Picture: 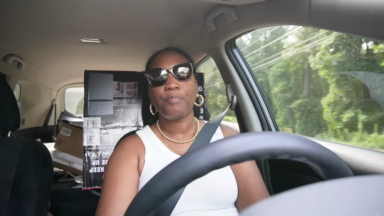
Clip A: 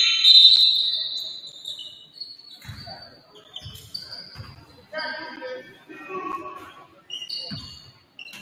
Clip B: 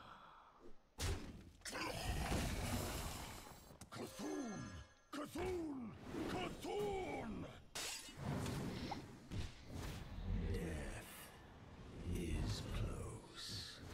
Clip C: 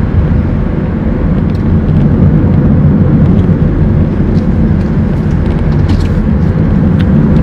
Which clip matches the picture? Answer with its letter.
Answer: C